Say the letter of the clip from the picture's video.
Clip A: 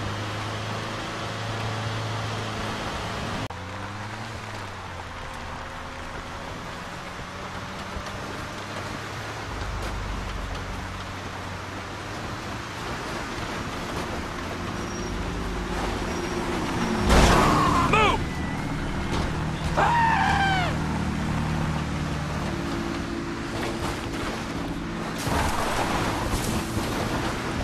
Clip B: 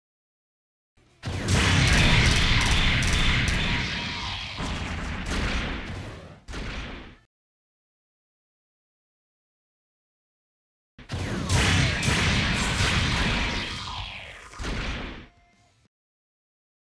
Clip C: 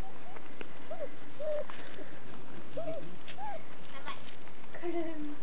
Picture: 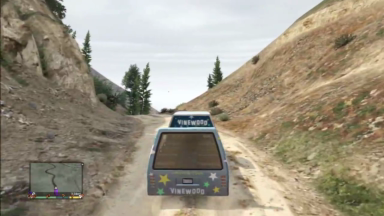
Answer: A